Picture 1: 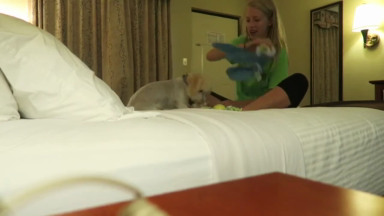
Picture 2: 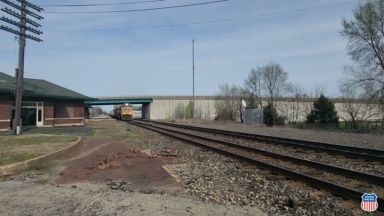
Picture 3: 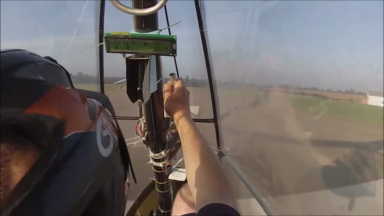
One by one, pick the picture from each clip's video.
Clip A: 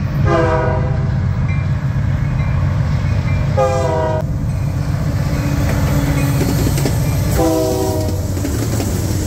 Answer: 2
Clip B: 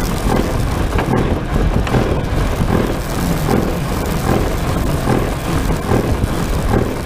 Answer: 3